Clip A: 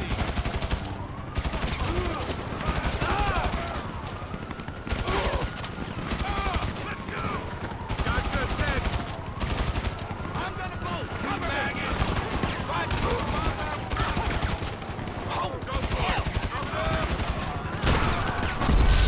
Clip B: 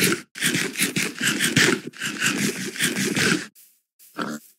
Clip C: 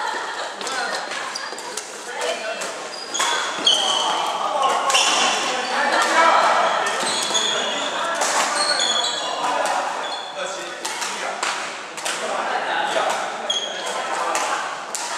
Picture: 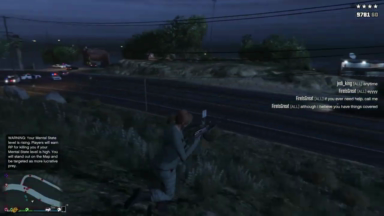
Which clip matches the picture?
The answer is A